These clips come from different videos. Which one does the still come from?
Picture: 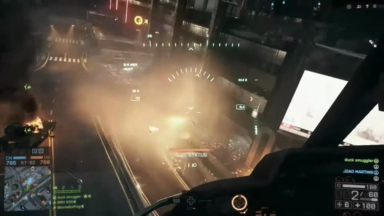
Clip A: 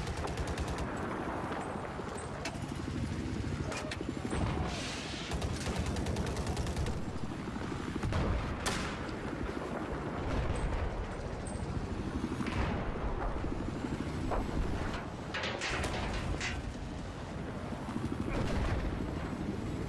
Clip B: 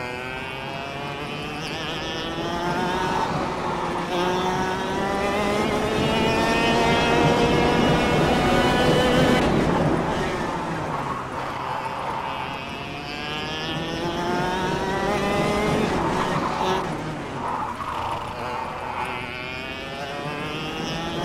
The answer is A